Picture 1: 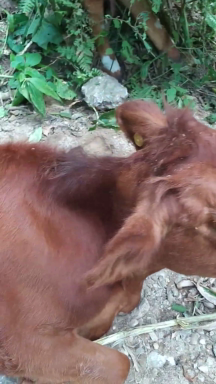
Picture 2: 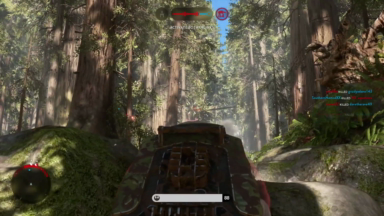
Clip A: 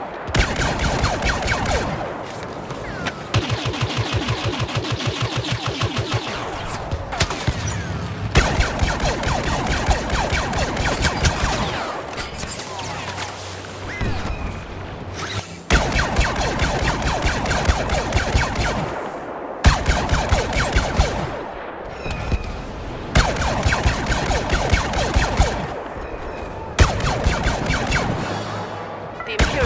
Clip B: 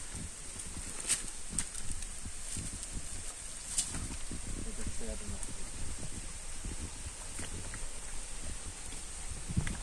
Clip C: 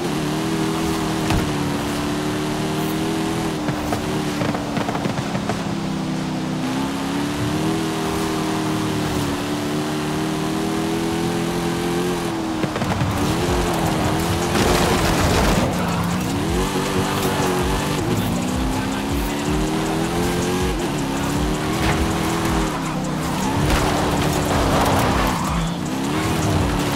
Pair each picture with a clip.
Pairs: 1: B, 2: A